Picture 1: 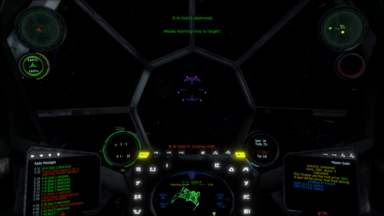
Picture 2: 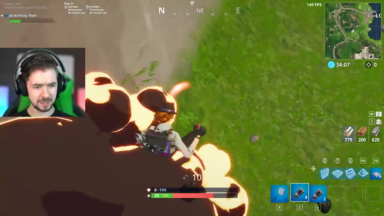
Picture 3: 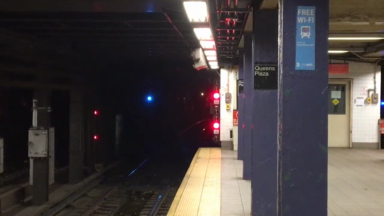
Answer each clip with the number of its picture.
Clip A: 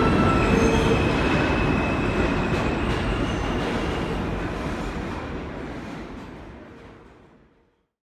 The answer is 3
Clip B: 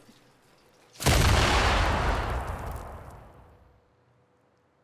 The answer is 2